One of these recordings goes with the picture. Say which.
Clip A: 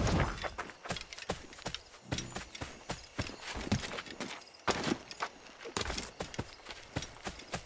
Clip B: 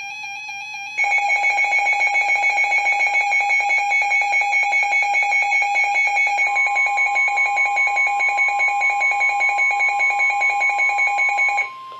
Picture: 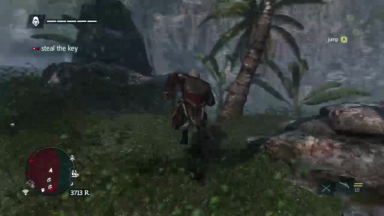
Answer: A